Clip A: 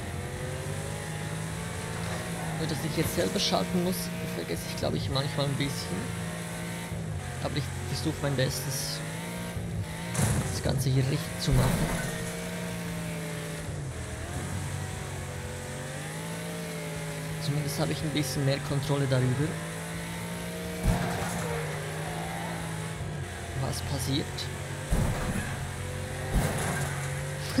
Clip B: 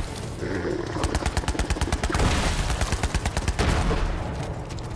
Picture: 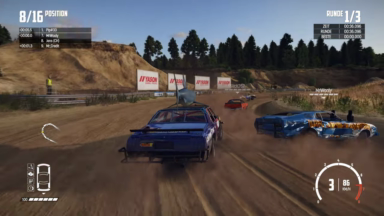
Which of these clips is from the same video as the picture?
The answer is A